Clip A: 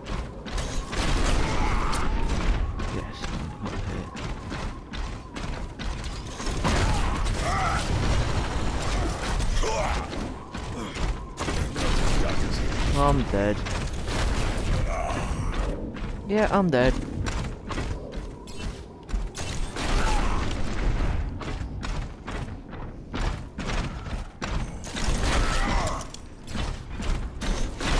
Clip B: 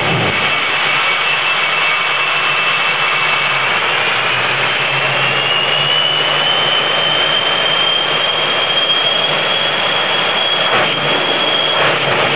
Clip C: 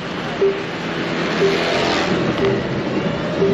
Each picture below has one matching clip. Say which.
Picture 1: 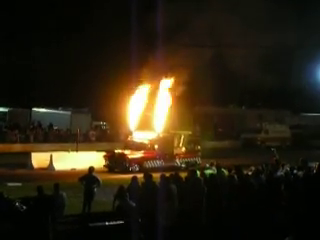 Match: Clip B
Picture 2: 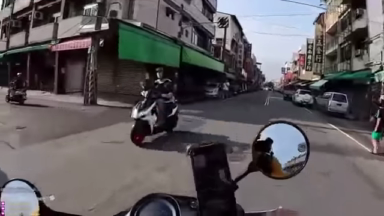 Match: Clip C